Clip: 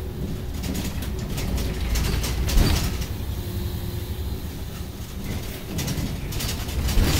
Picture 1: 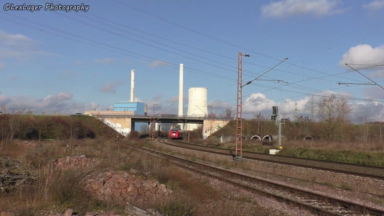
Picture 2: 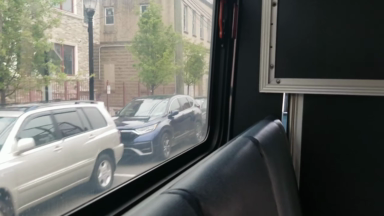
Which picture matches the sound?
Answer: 2